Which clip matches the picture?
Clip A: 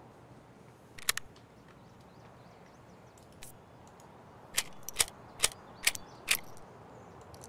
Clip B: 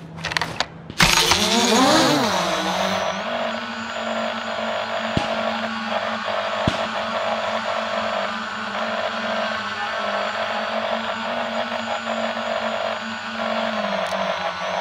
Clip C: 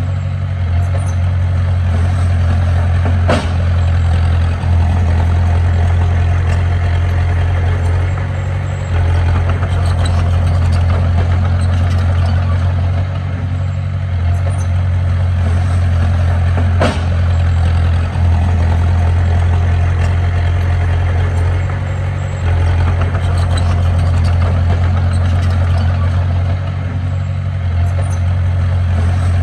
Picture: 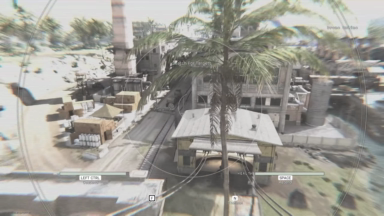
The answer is B